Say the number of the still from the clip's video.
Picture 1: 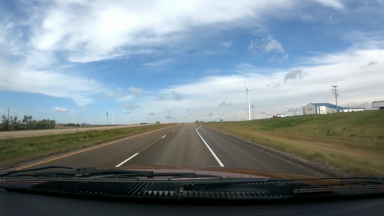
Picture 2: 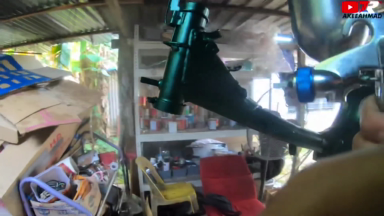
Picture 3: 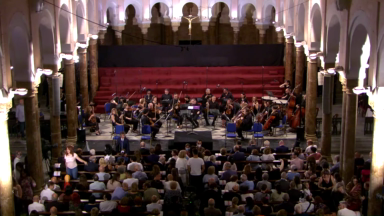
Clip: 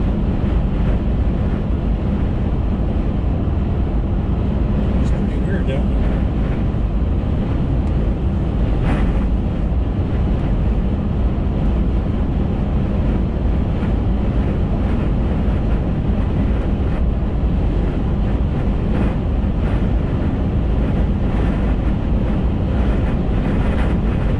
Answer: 1